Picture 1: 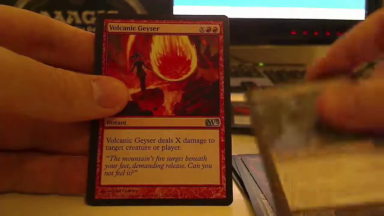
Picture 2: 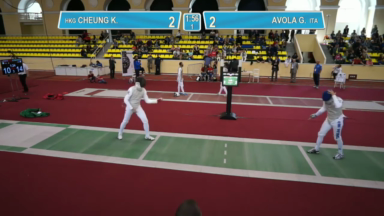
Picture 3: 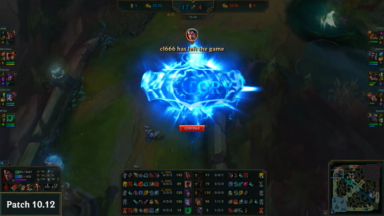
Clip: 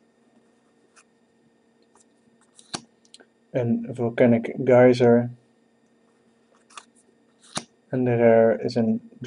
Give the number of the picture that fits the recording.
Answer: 1